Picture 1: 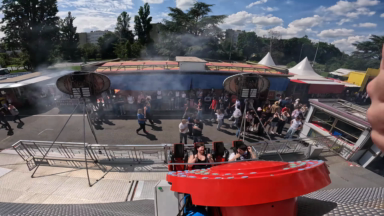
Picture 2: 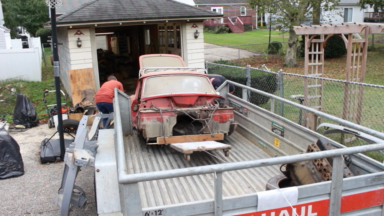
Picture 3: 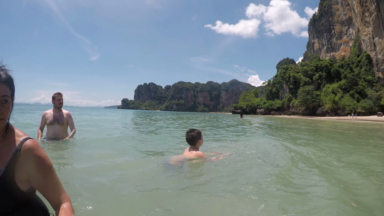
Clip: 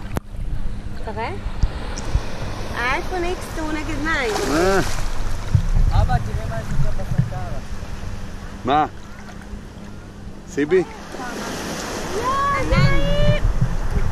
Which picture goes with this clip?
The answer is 3